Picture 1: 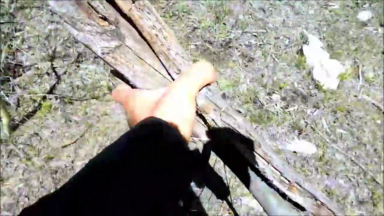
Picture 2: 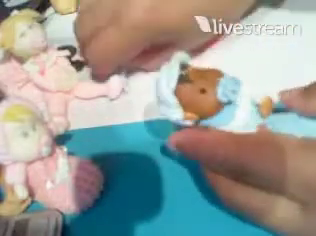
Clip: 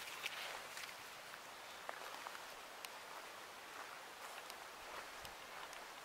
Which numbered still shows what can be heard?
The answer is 1